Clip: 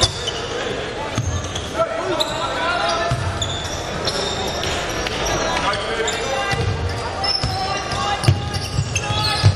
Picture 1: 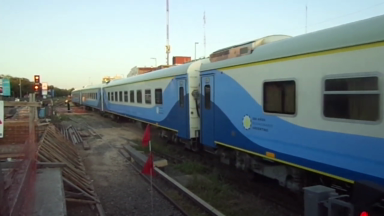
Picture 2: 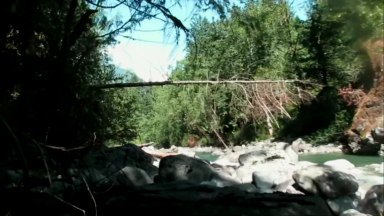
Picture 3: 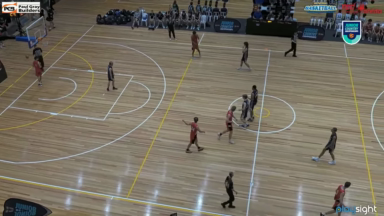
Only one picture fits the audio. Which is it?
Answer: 3